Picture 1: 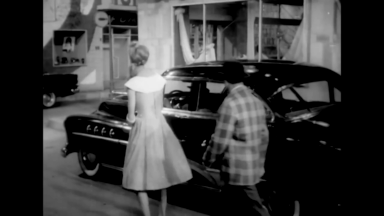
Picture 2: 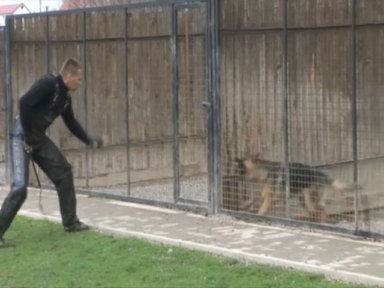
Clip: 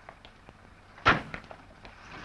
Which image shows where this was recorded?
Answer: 1